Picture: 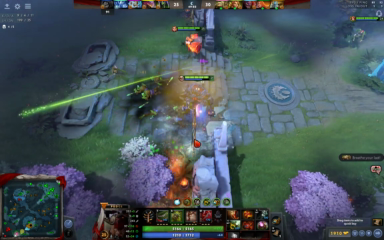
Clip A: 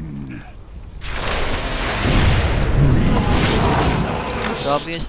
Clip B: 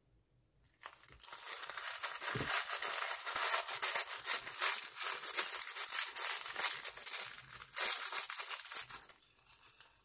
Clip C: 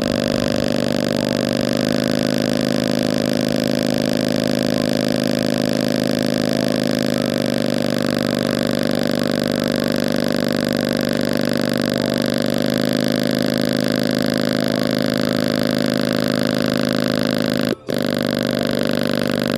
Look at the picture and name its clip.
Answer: A